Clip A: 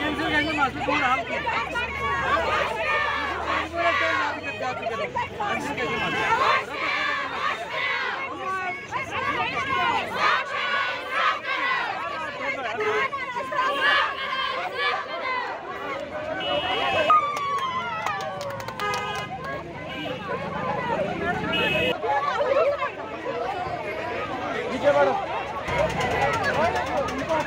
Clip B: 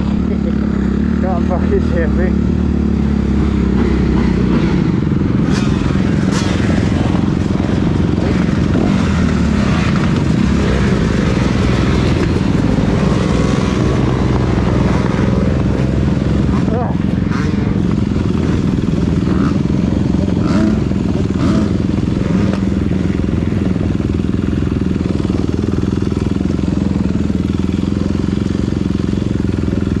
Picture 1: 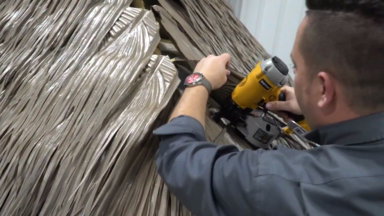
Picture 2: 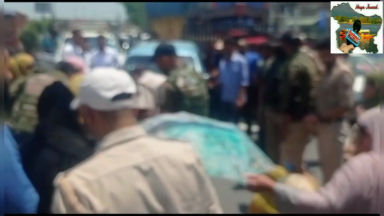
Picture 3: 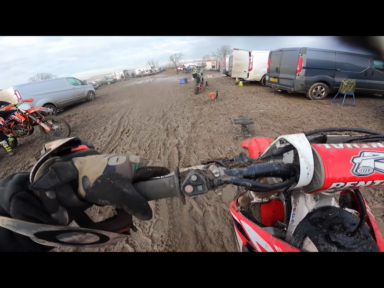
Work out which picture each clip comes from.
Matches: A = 2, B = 3